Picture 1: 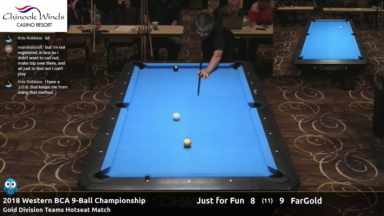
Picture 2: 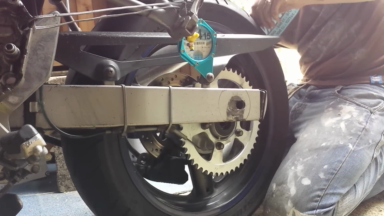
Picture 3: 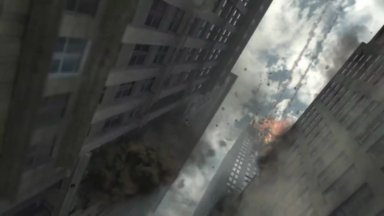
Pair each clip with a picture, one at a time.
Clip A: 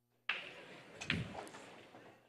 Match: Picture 1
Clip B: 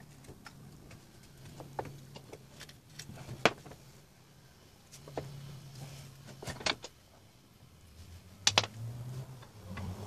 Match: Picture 2